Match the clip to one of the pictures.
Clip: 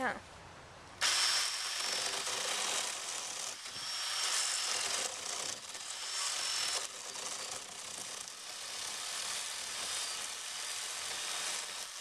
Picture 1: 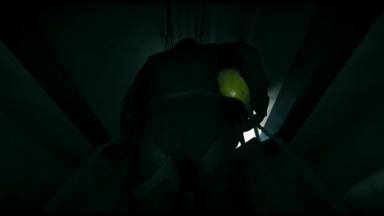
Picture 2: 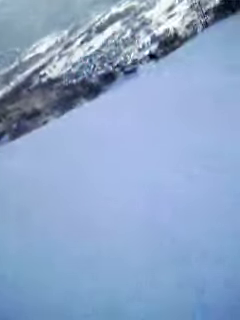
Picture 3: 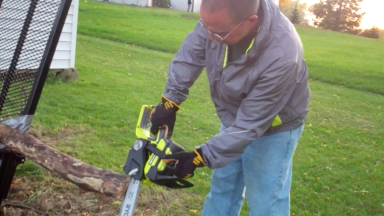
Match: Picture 3